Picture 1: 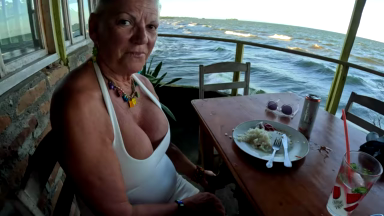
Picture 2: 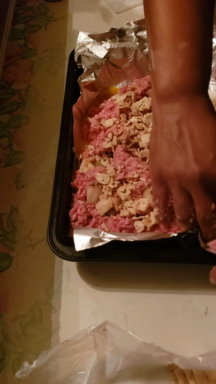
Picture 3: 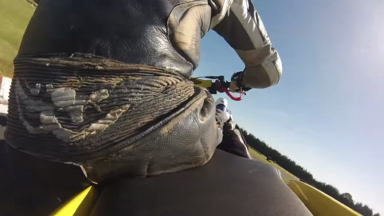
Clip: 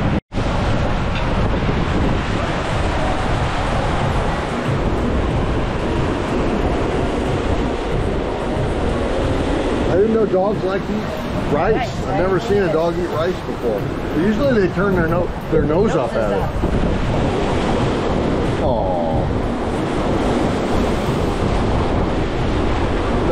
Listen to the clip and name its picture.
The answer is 1